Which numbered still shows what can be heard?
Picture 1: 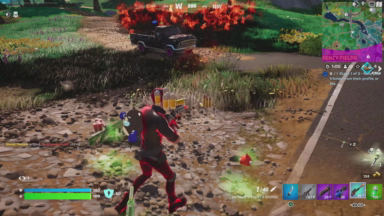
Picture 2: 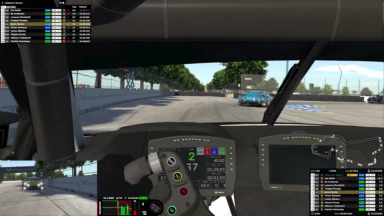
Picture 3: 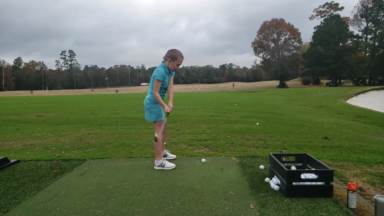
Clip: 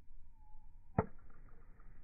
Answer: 3